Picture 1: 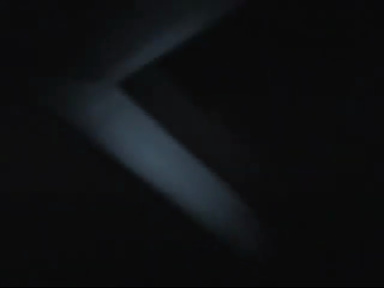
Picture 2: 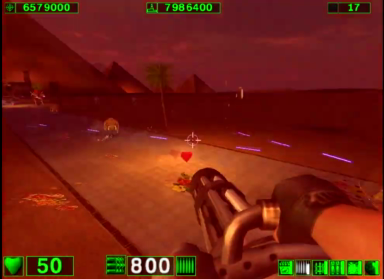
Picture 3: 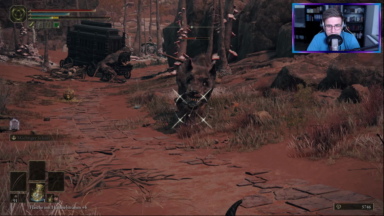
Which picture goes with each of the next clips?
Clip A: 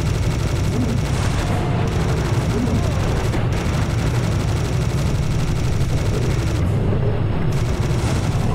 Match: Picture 2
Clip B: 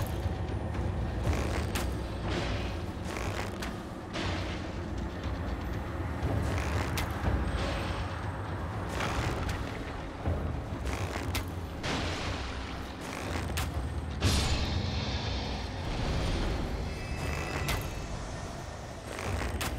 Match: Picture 3